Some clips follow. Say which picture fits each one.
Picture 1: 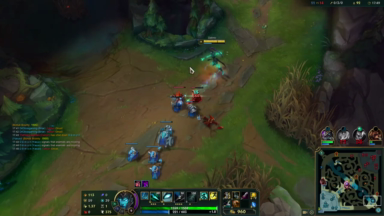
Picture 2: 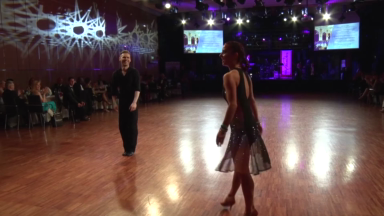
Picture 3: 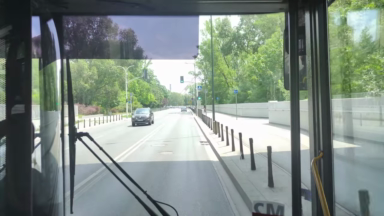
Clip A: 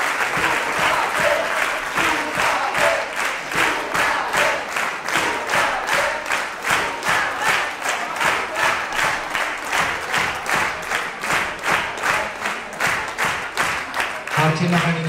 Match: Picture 2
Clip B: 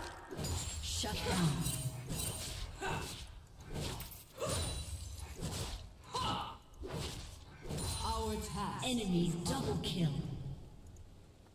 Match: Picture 1